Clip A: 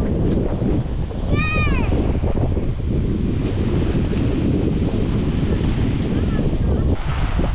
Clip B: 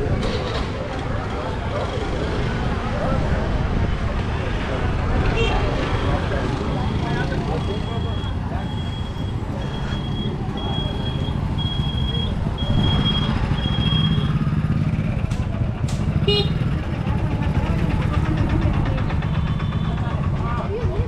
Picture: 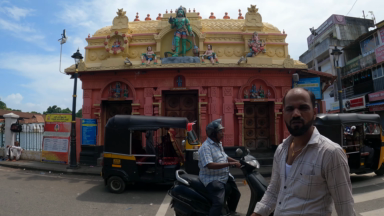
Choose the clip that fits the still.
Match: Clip B